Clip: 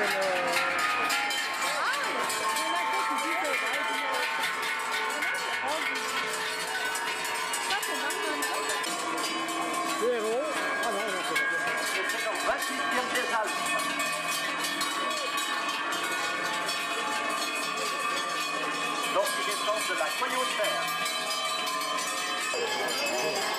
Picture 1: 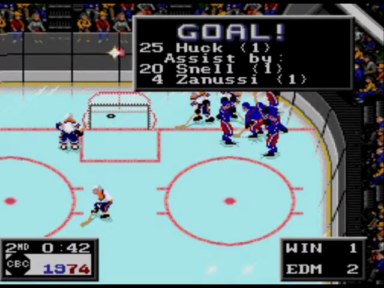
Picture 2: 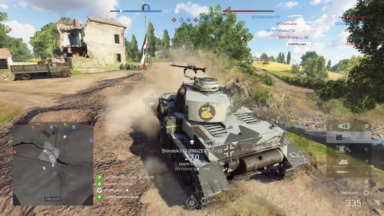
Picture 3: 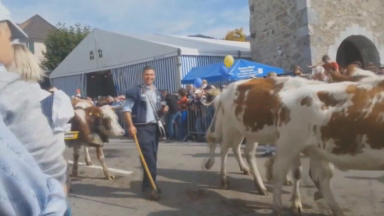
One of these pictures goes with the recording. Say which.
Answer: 3